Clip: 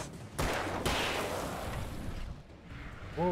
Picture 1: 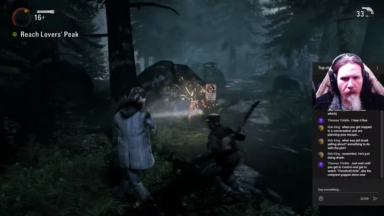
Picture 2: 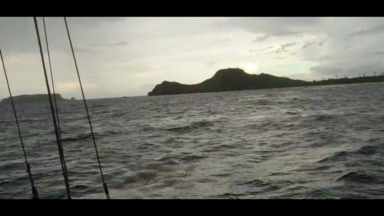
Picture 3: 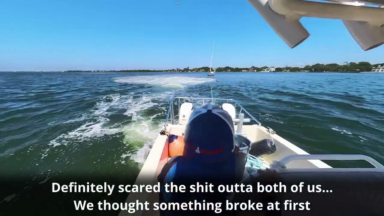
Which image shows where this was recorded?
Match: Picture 1